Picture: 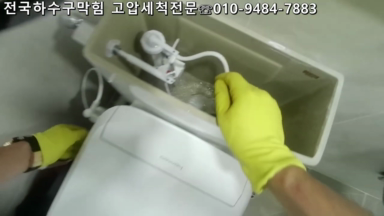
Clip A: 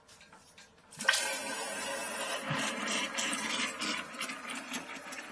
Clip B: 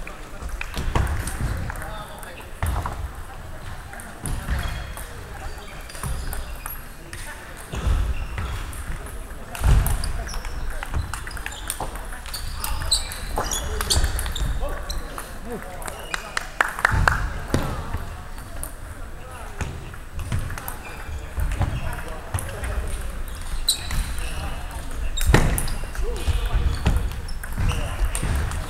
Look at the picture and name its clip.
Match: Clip A